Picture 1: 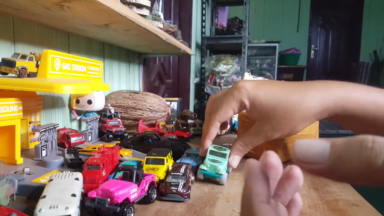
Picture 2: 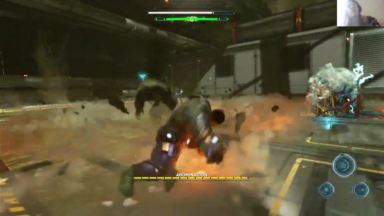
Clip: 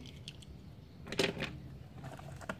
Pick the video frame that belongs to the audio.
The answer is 1